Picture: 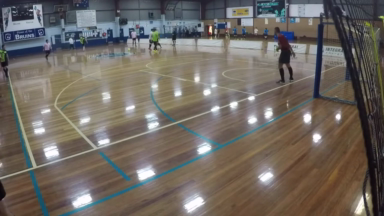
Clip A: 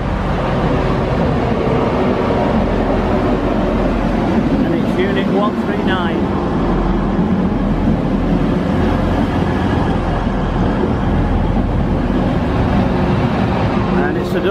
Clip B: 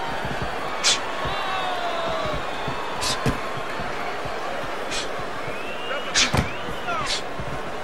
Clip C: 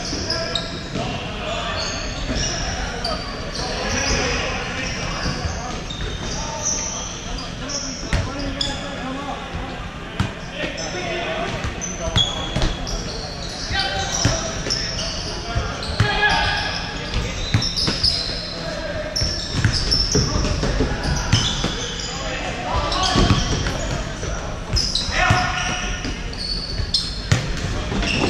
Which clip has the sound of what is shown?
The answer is C